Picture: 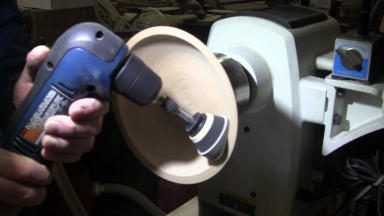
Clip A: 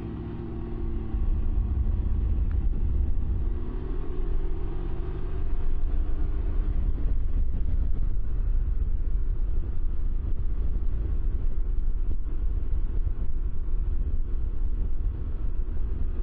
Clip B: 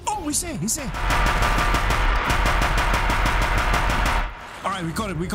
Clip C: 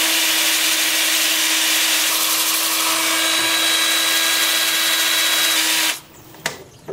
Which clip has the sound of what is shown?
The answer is C